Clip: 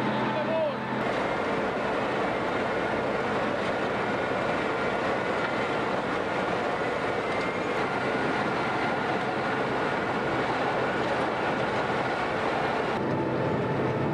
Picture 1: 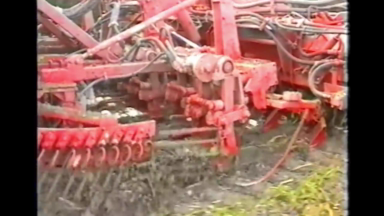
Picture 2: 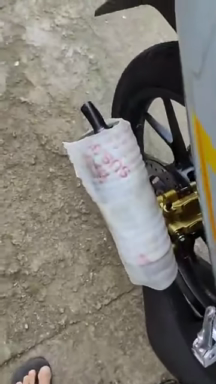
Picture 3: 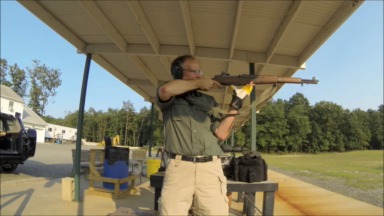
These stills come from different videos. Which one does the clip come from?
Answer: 1